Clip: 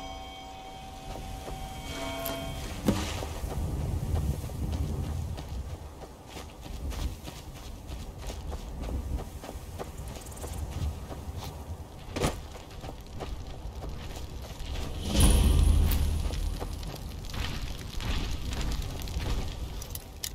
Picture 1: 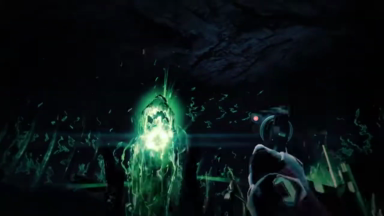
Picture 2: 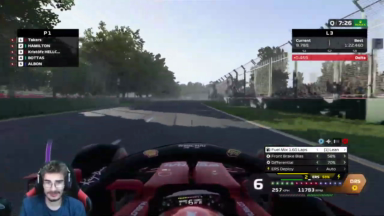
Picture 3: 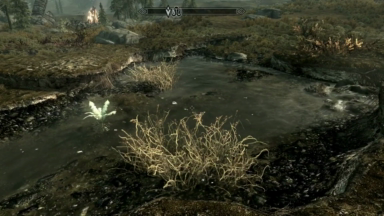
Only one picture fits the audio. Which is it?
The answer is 3